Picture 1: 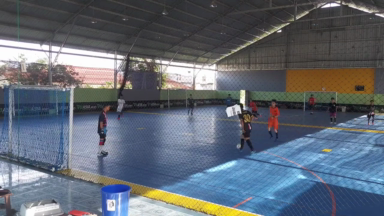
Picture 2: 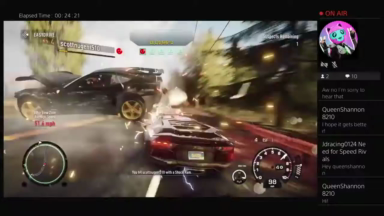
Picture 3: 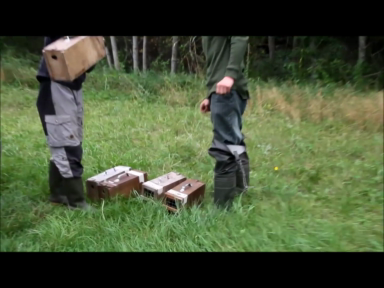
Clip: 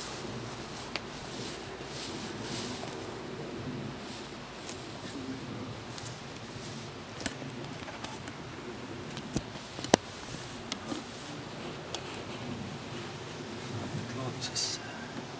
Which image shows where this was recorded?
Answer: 3